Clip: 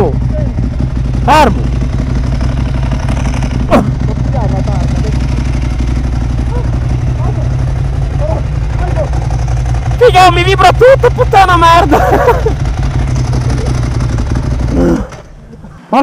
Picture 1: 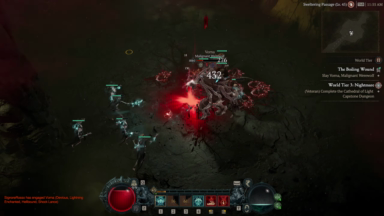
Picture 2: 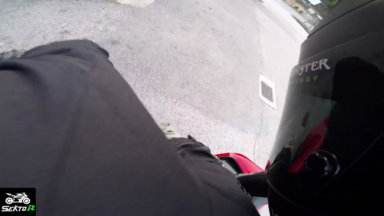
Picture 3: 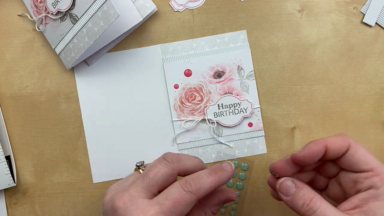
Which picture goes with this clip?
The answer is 2